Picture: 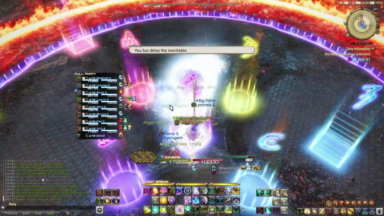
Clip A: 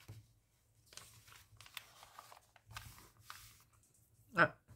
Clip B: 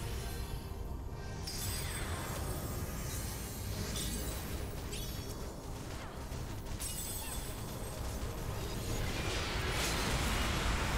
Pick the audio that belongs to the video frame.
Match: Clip B